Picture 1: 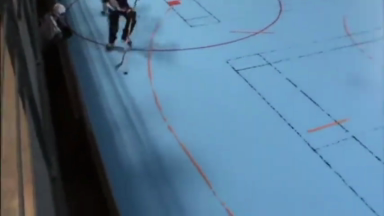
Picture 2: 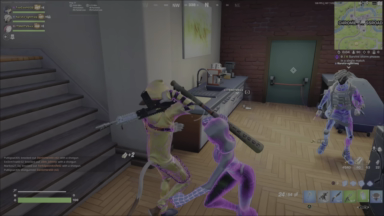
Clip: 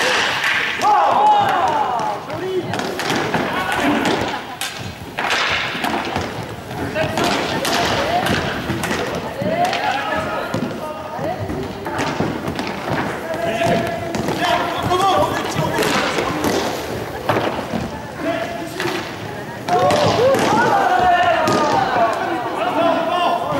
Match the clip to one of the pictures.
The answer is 1